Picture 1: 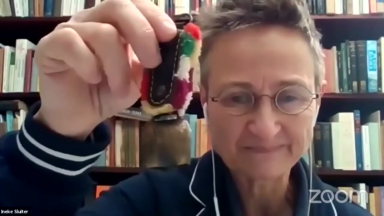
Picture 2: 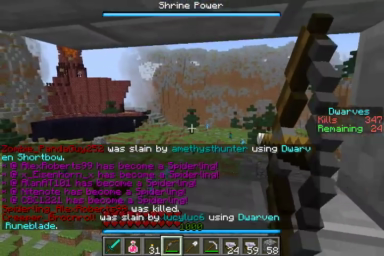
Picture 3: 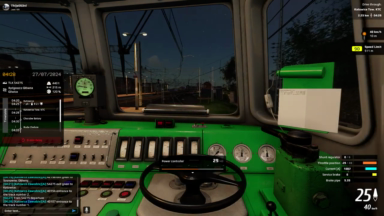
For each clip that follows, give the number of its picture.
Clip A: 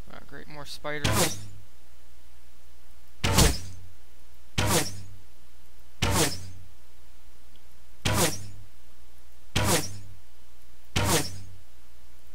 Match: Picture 2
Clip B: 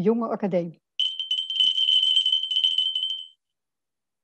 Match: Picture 1